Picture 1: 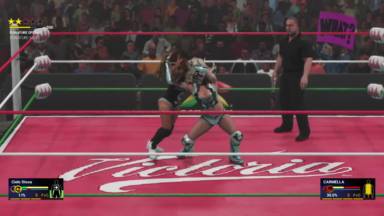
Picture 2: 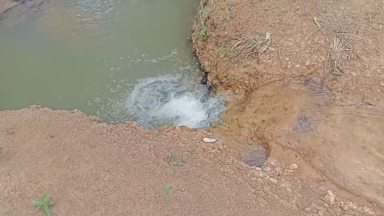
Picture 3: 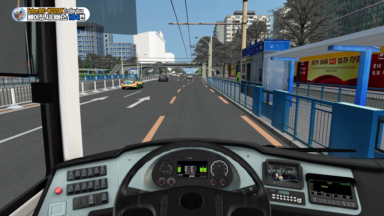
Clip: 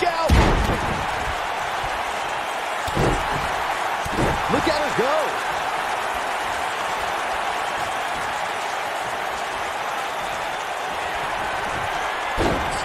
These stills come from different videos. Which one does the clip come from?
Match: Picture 1